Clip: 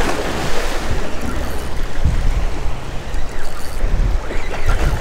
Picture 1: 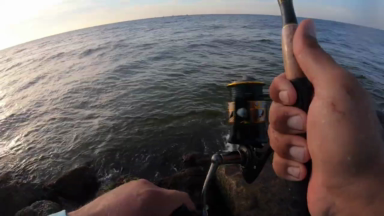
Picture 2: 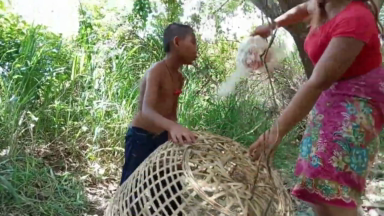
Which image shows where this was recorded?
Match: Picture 1